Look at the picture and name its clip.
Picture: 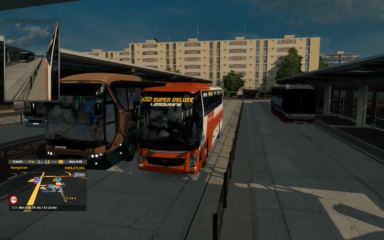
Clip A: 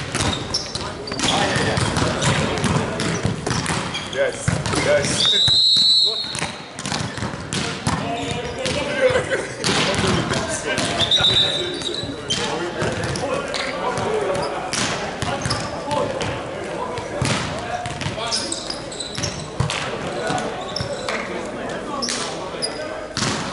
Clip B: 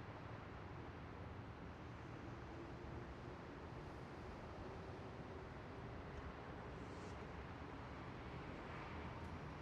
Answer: B